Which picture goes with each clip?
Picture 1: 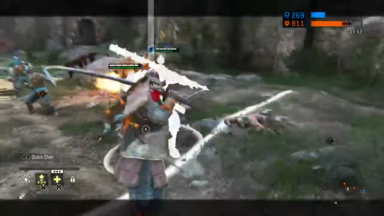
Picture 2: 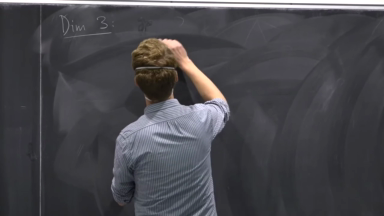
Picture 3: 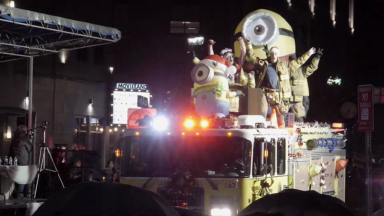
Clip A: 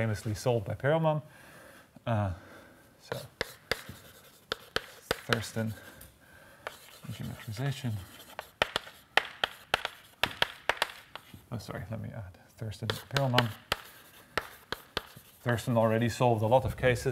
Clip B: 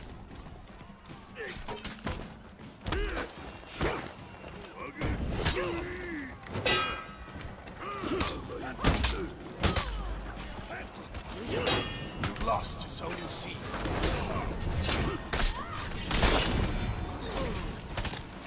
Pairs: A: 2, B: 1